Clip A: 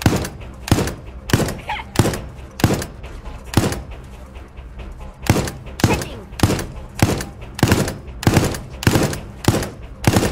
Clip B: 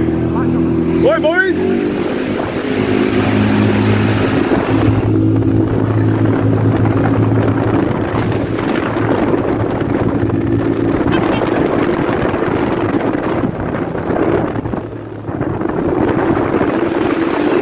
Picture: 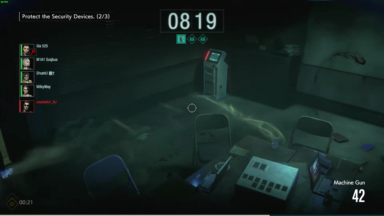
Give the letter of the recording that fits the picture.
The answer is A